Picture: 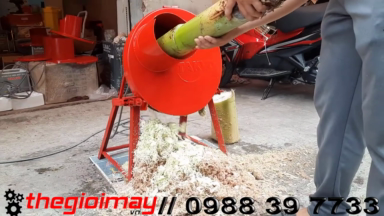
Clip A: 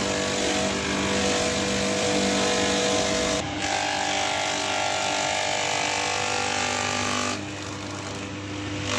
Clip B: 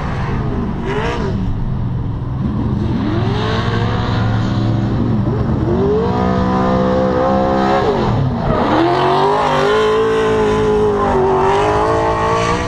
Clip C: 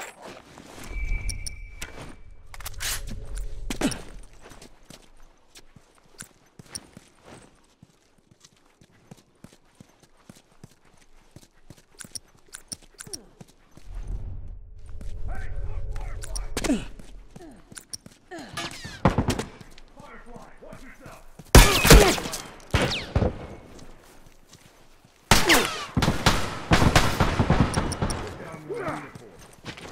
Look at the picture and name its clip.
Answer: A